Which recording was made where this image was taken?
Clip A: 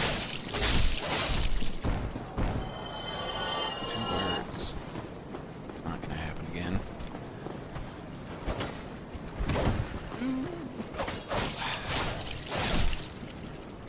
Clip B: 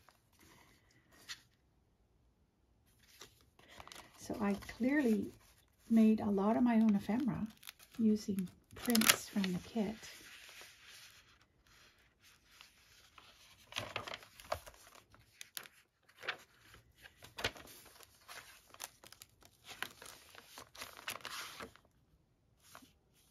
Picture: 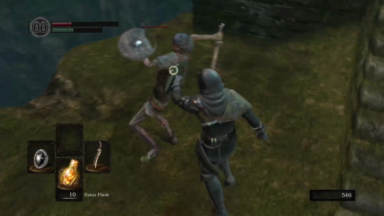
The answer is A